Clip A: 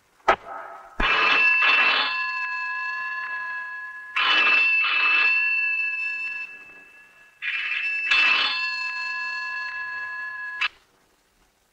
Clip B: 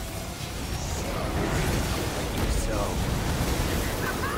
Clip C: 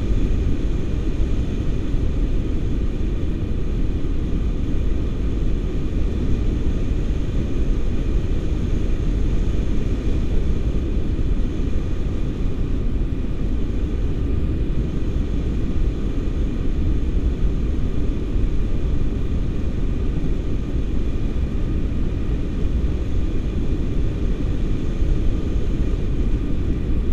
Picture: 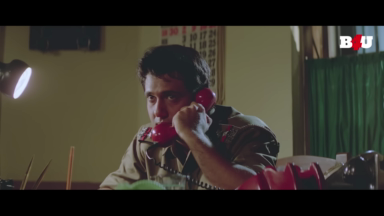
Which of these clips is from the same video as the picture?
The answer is A